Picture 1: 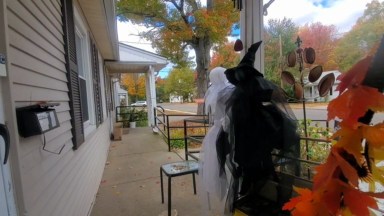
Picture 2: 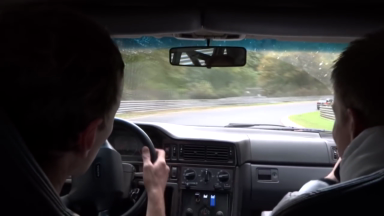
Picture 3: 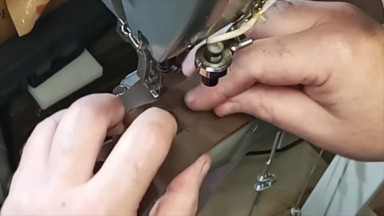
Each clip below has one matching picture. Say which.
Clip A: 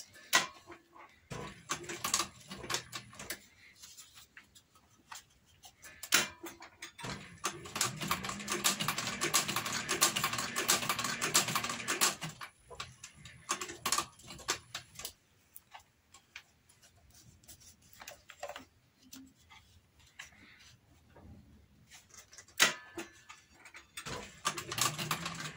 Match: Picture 3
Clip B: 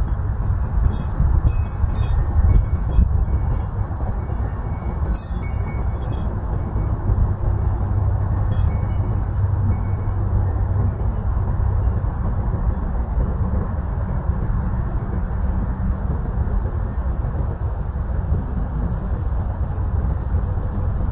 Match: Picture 1